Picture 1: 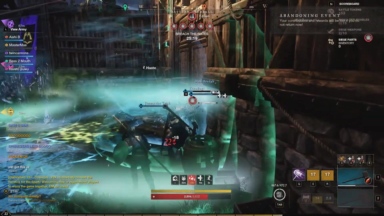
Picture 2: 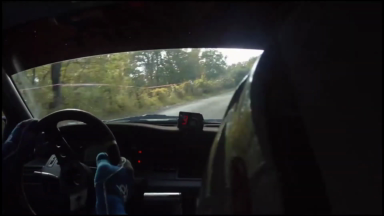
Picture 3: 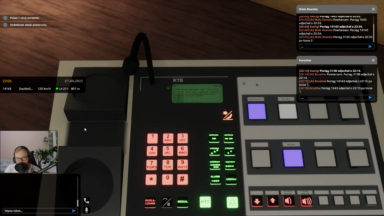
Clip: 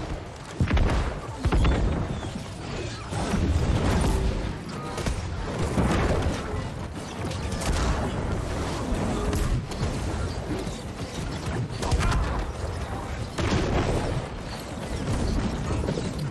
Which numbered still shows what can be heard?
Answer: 1